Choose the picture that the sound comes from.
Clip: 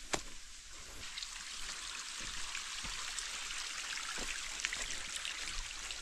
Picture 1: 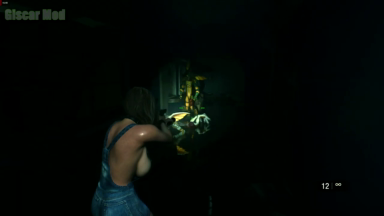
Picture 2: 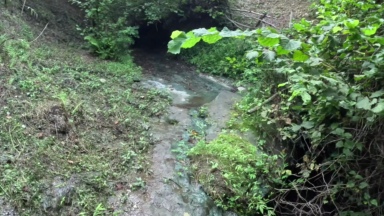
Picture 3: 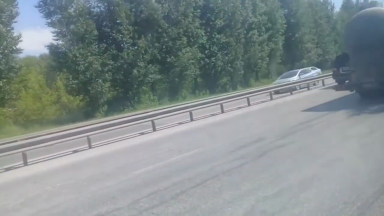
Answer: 2